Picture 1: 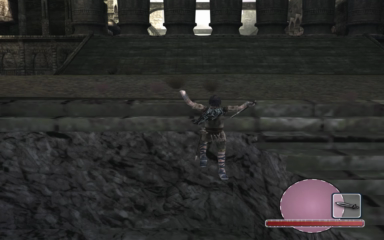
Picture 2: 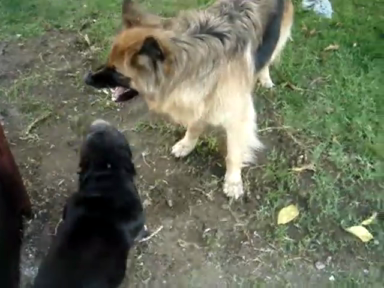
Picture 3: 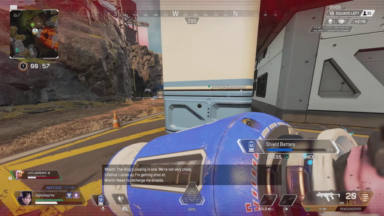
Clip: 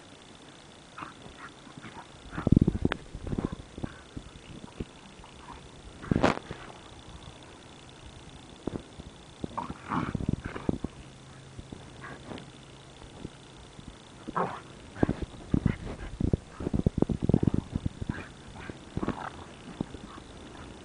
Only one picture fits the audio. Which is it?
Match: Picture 2